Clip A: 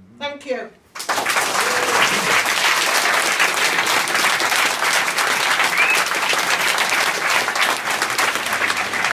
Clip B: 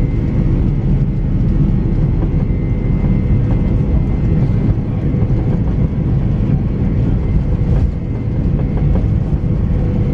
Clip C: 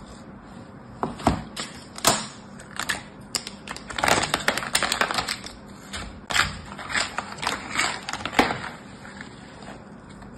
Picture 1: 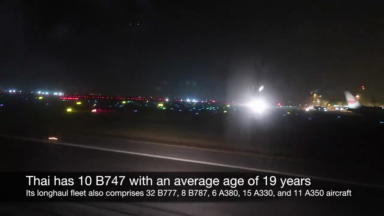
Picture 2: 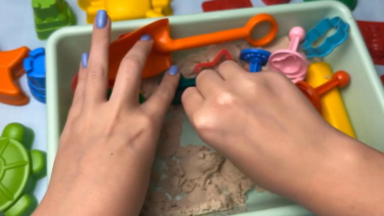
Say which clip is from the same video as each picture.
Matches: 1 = B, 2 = C